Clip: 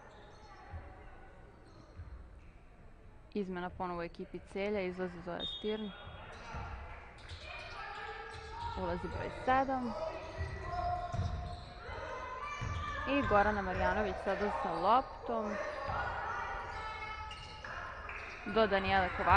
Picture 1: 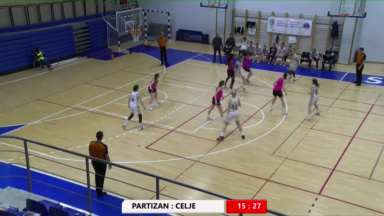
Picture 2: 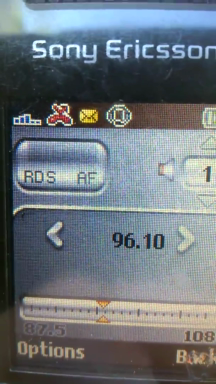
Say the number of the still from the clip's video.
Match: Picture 1